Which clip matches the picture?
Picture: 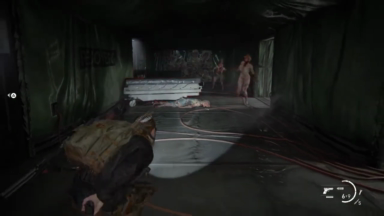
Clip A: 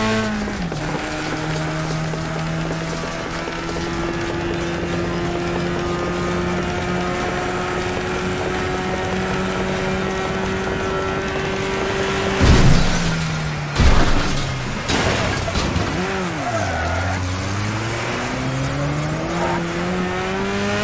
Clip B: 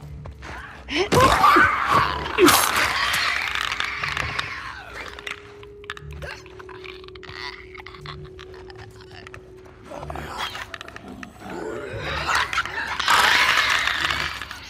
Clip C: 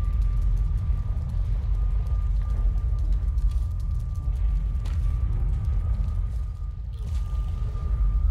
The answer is B